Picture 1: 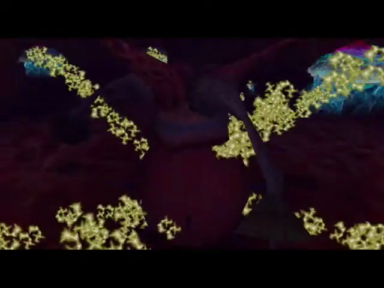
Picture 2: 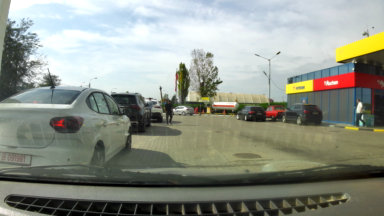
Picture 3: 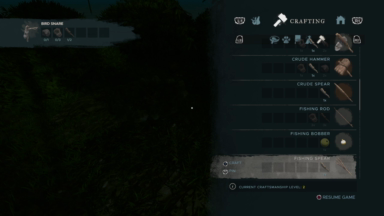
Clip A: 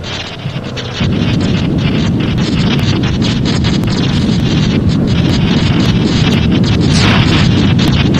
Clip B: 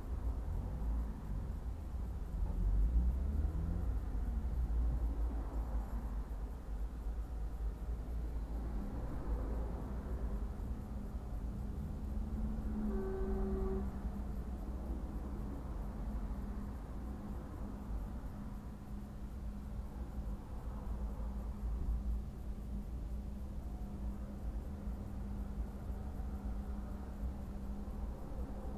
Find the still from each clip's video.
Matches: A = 1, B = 2